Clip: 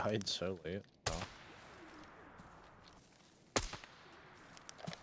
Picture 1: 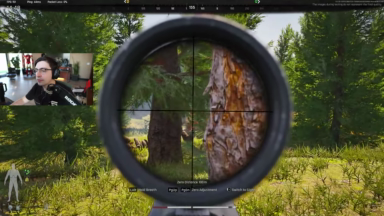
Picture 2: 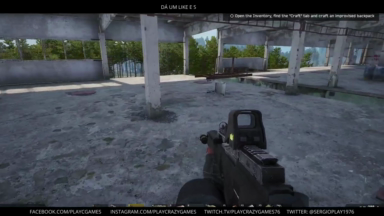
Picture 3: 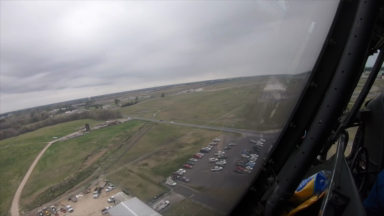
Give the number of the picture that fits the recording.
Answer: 1